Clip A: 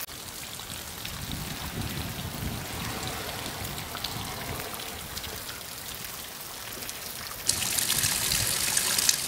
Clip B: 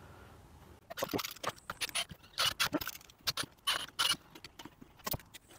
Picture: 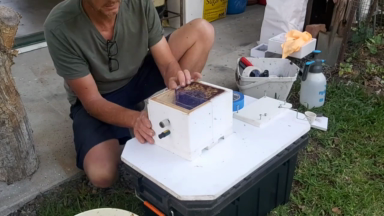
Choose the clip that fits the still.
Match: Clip B